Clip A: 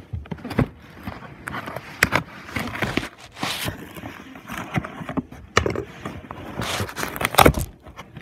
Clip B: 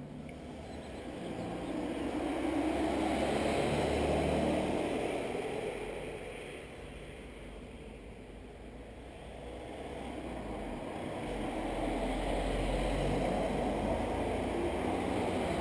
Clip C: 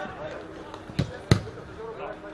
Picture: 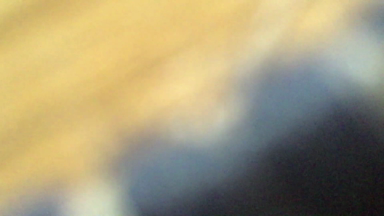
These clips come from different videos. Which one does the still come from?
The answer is A